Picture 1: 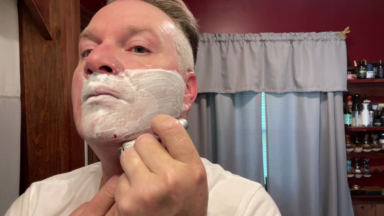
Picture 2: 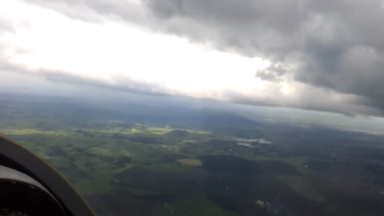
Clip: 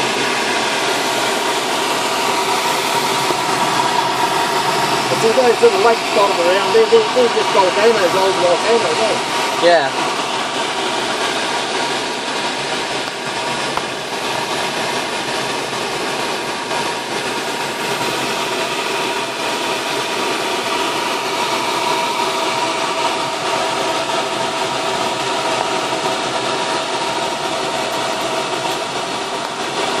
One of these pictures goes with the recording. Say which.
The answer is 2